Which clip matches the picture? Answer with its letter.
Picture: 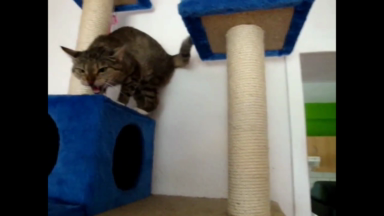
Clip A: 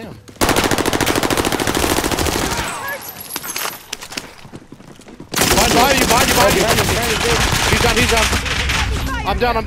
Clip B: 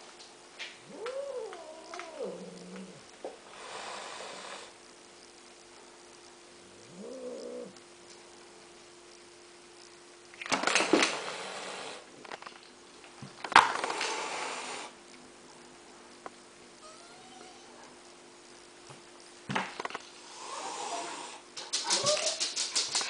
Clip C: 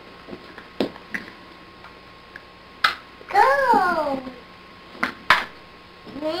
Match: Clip B